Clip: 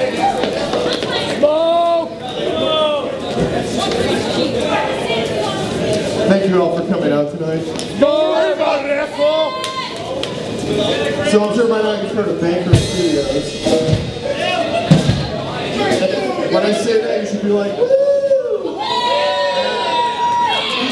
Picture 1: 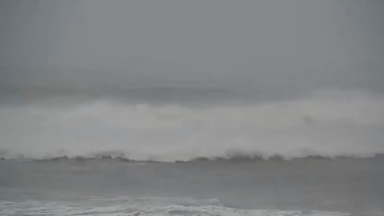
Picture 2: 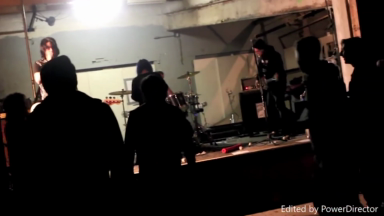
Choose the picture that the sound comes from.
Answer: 2